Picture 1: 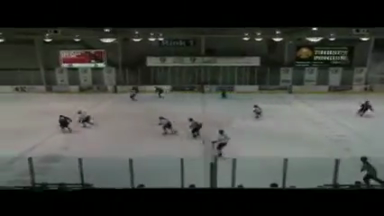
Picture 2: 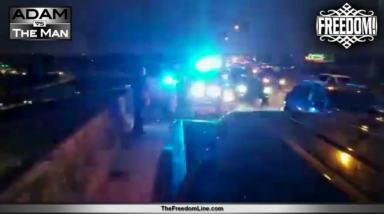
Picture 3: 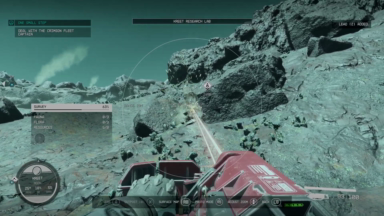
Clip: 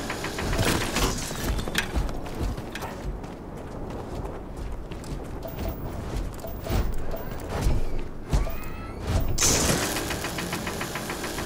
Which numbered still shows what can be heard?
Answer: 3